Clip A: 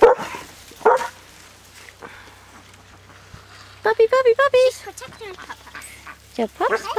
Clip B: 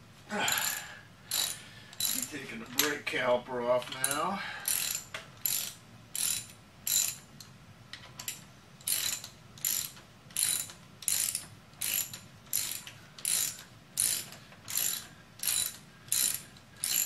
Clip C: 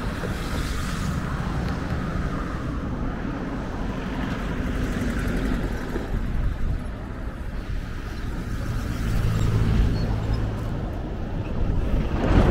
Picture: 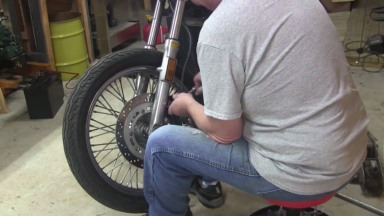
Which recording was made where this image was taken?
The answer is B